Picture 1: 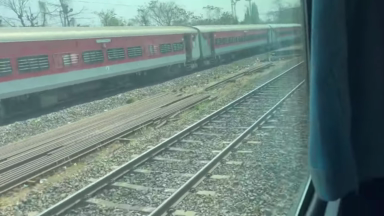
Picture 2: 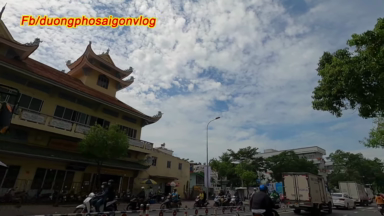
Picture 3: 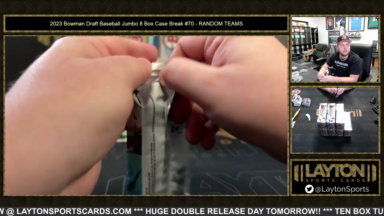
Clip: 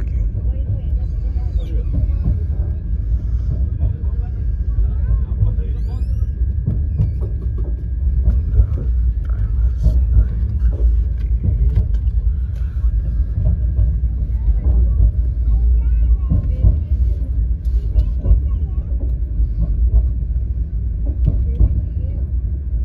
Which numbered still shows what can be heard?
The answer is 1